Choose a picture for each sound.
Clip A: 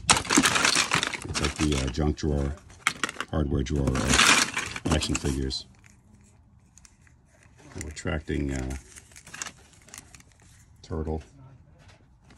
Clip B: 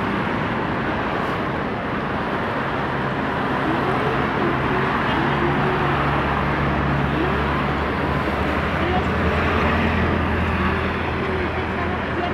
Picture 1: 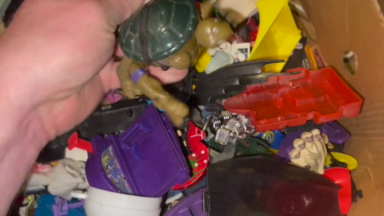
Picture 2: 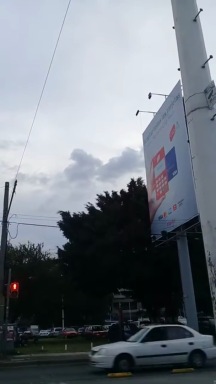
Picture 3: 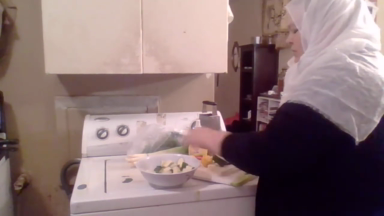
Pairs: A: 1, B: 2